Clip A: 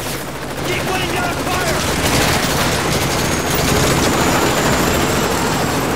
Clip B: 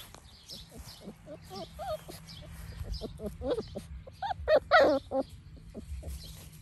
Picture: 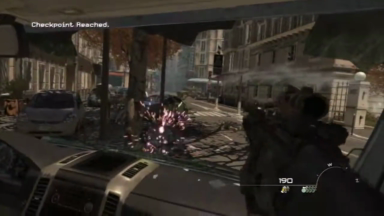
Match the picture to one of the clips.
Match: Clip A